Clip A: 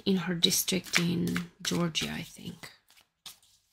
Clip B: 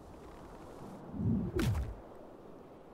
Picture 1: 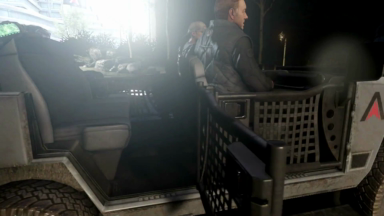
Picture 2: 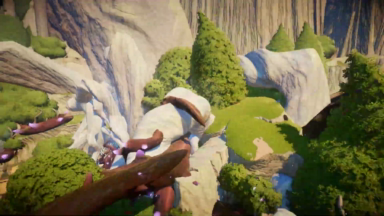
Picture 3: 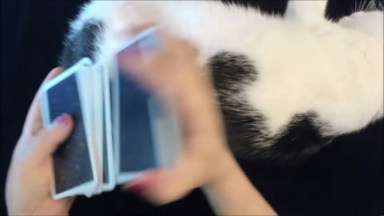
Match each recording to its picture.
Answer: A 3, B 2